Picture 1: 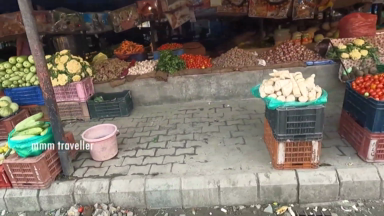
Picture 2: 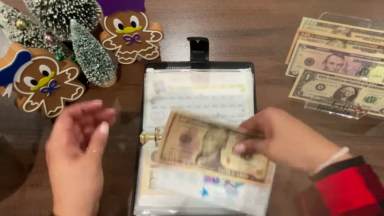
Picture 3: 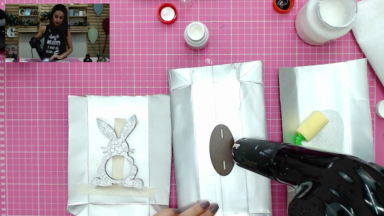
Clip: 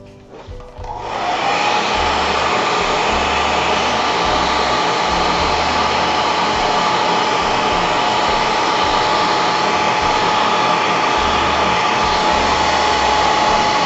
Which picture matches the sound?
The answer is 3